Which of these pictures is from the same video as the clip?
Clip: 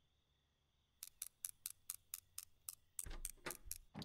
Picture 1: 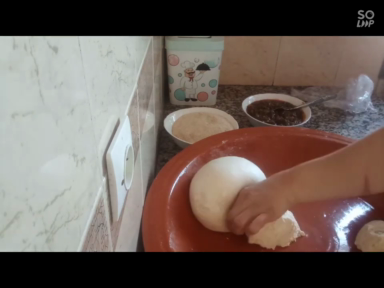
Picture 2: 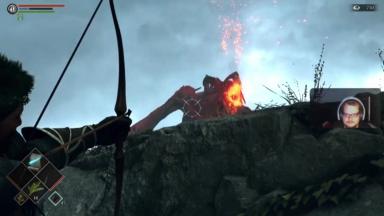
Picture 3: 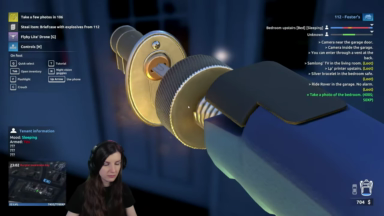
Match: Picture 3